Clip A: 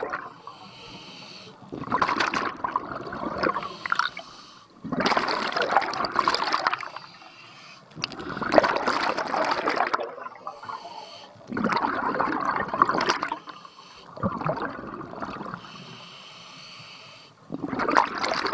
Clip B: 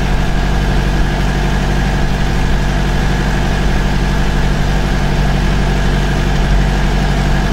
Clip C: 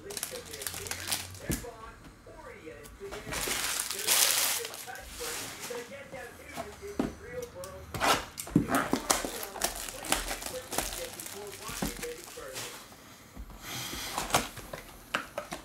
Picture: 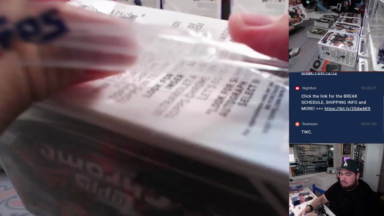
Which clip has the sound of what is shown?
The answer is C